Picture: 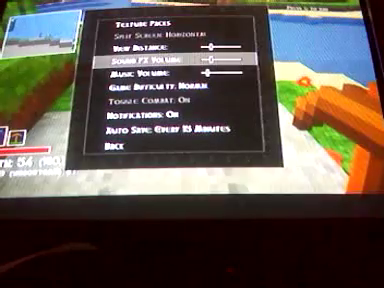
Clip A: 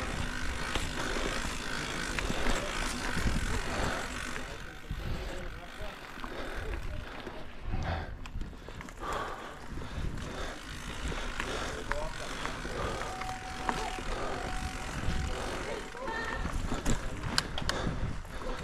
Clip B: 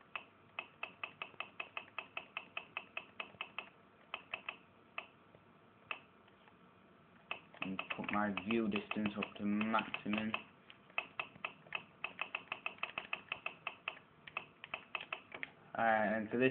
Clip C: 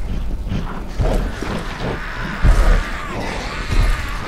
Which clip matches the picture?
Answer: B